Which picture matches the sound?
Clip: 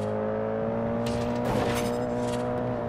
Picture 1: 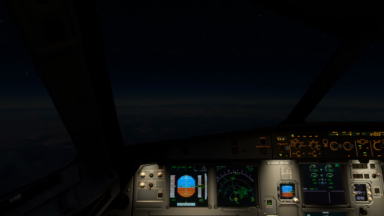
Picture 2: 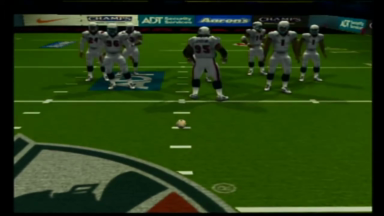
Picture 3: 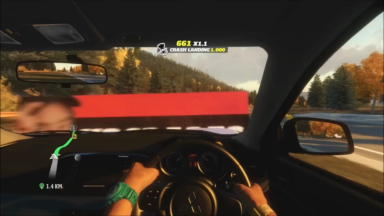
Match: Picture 3